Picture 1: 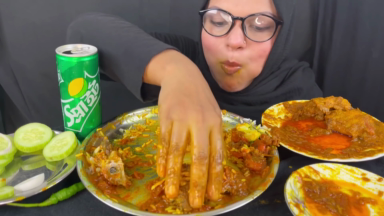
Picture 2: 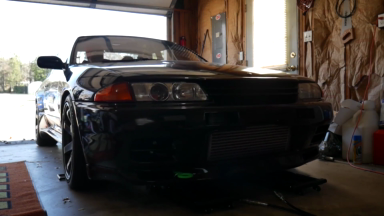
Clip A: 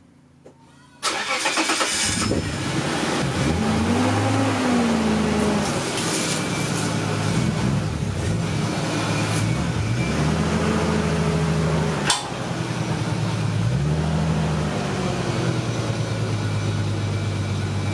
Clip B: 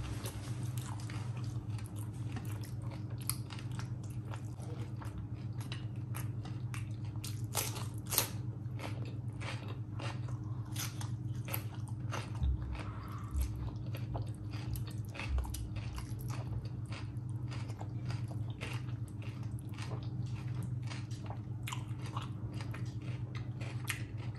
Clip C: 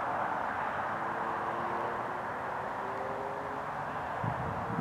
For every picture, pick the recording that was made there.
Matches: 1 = B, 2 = A